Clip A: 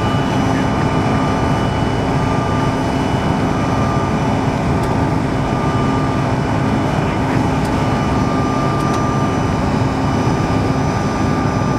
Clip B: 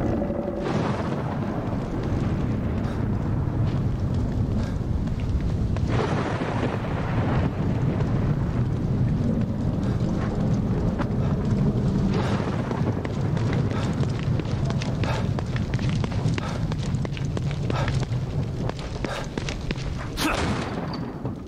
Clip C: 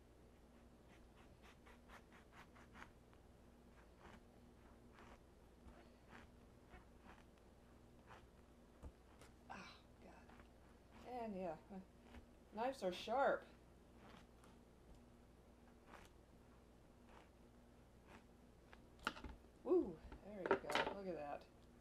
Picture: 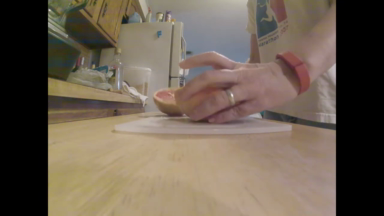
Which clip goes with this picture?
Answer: C